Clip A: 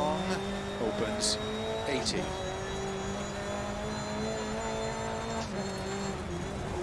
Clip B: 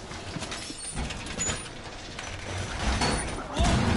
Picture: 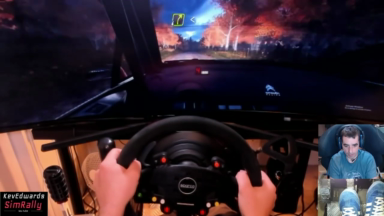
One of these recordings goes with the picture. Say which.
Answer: A